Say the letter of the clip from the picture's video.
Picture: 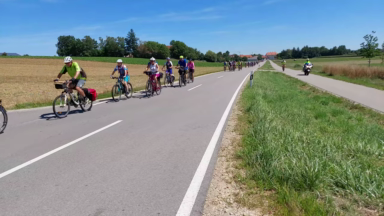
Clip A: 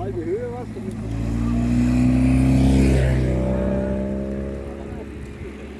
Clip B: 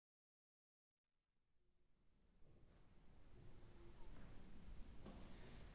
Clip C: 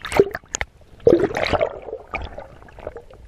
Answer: A